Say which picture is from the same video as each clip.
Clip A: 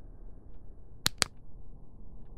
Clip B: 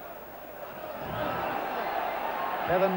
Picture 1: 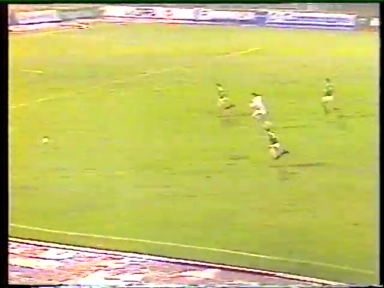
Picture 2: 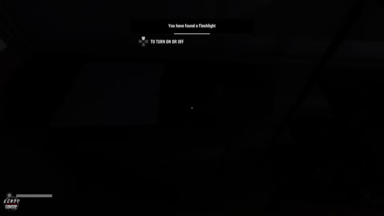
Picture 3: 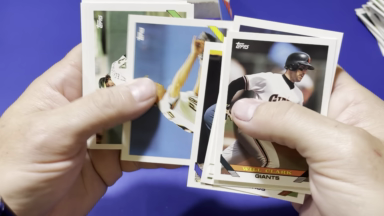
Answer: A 2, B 1